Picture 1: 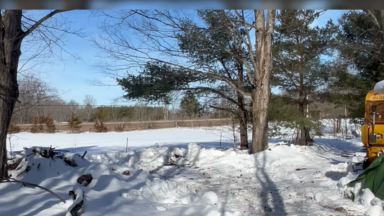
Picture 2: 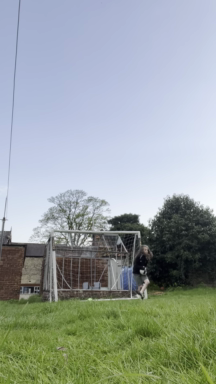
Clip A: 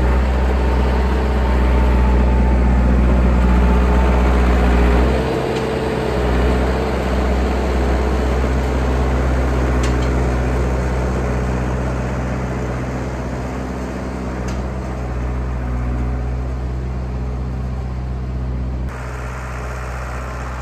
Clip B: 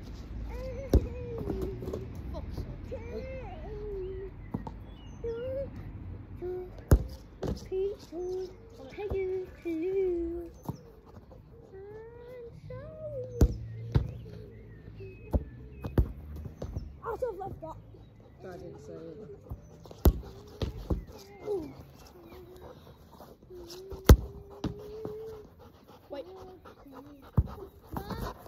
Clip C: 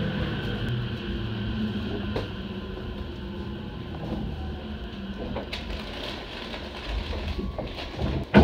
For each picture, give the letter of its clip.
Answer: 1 A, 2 B